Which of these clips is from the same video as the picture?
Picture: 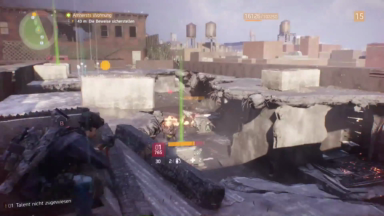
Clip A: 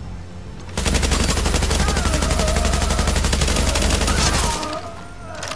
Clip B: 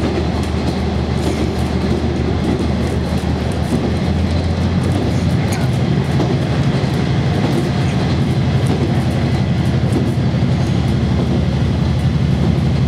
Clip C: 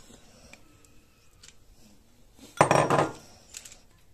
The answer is A